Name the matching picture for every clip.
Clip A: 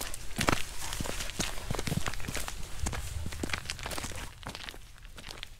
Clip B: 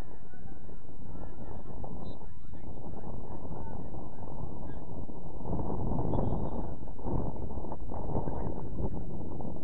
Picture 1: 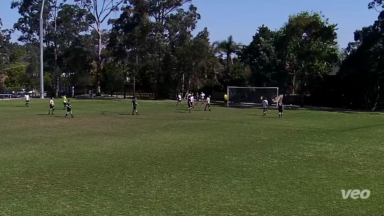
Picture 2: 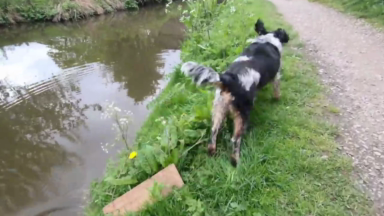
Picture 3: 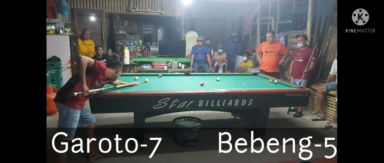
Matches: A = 2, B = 1